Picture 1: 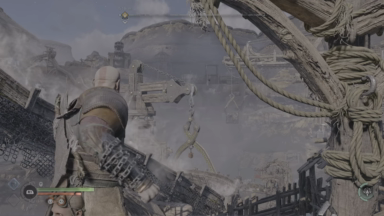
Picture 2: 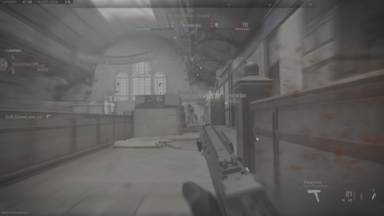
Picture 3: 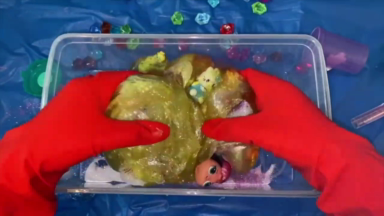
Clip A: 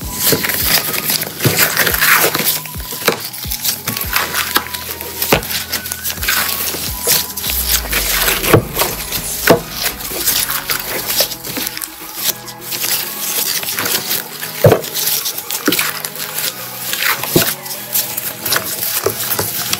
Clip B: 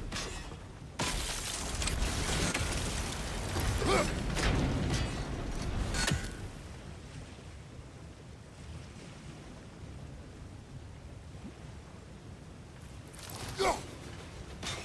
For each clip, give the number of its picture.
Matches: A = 3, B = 1